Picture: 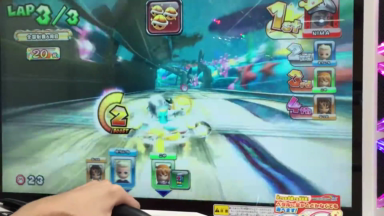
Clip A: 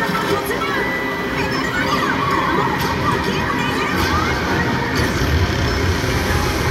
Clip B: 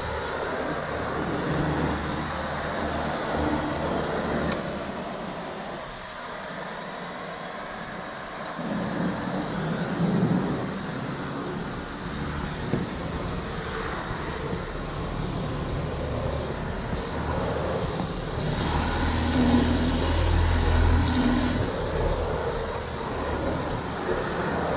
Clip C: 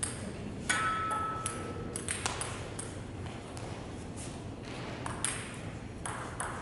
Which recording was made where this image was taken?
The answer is A